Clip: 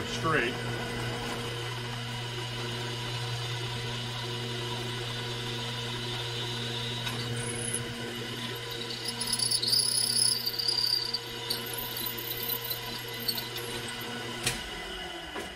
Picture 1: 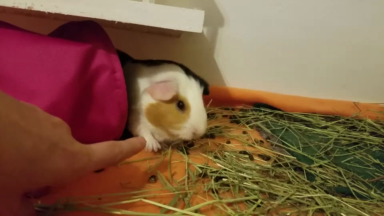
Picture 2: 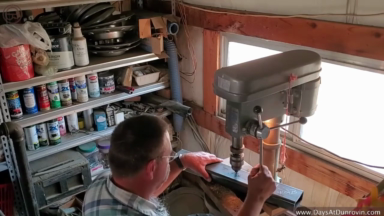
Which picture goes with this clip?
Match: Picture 2